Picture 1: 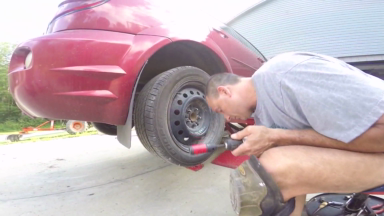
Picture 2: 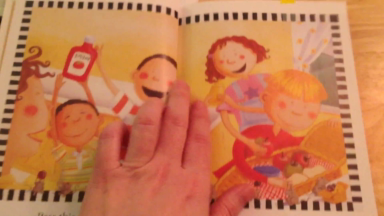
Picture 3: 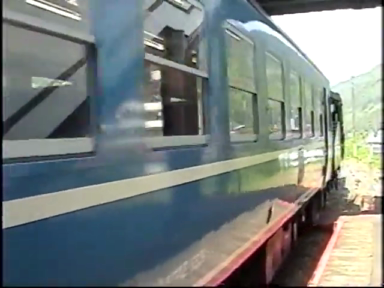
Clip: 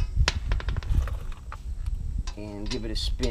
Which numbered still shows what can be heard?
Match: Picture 1